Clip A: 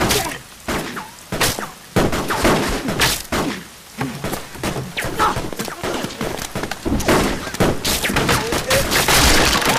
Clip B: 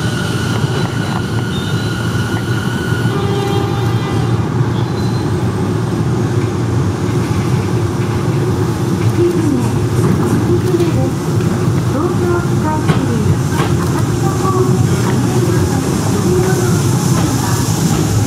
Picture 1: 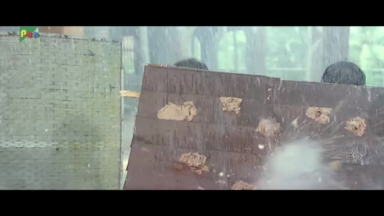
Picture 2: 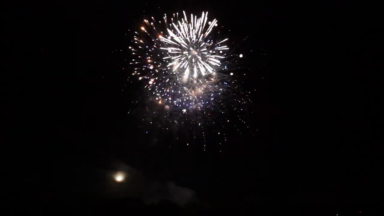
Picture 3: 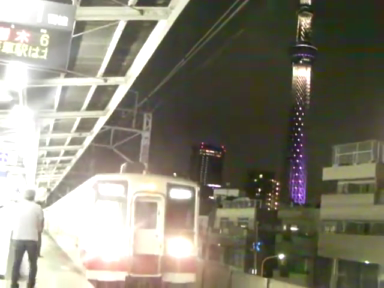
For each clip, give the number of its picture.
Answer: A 1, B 3